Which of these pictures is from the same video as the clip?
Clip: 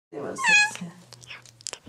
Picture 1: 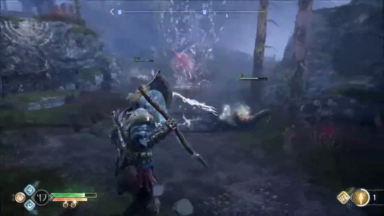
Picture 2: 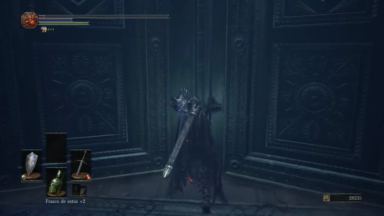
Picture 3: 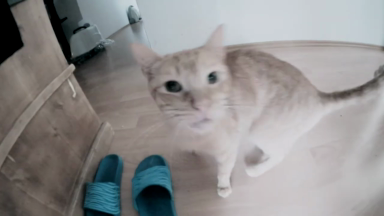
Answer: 3